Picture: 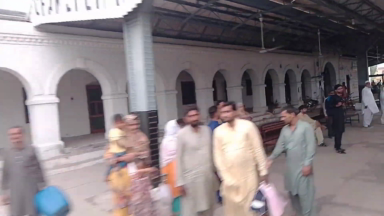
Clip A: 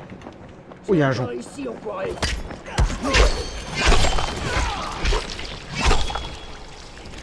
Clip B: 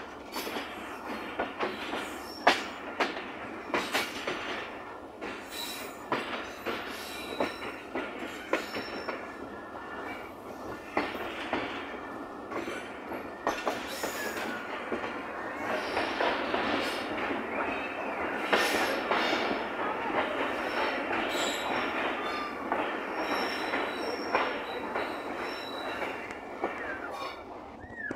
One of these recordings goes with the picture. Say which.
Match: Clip B